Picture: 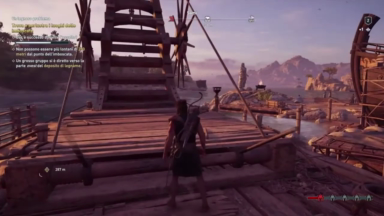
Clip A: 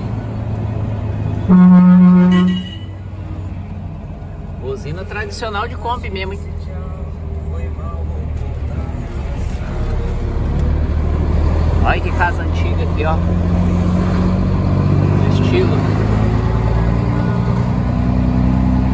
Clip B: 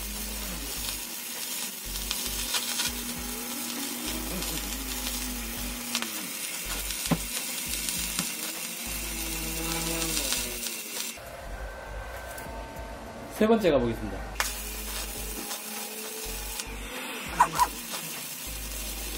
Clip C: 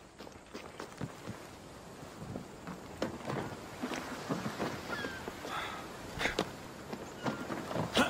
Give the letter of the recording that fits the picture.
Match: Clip C